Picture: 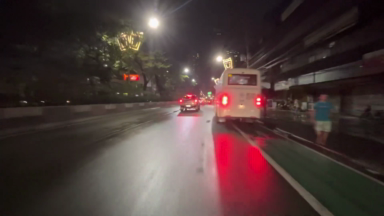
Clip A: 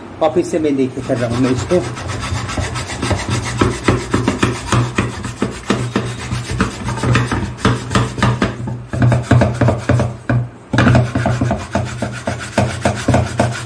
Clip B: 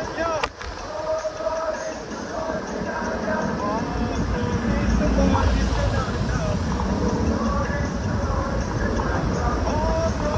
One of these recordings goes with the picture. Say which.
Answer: B